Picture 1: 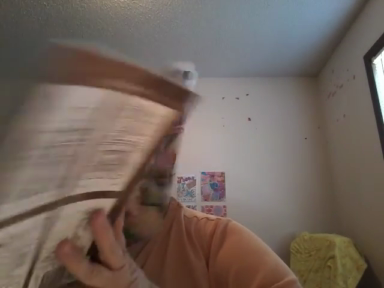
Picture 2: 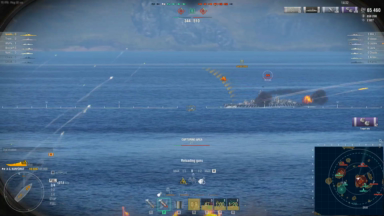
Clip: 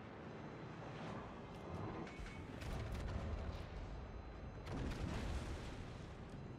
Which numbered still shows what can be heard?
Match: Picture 2